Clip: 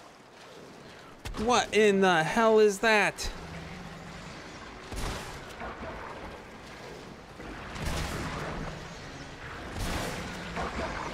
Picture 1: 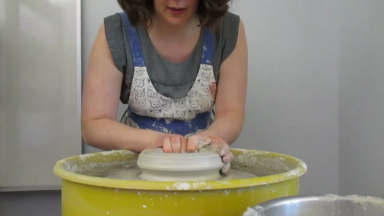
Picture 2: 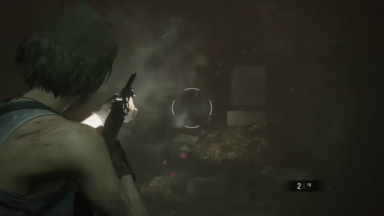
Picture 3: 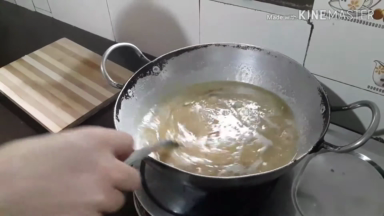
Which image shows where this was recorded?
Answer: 2